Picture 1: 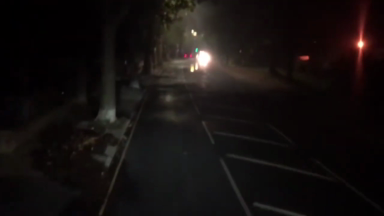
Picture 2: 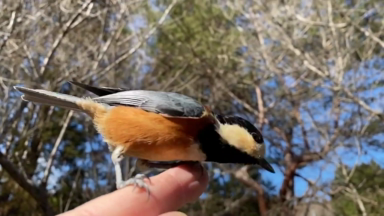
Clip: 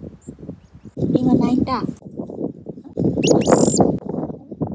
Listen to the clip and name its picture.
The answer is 2